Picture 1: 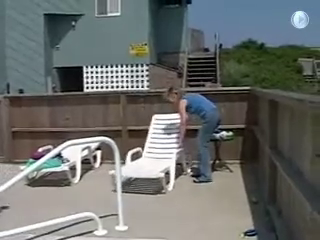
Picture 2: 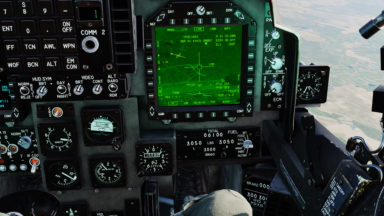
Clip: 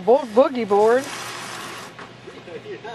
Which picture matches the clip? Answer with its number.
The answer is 1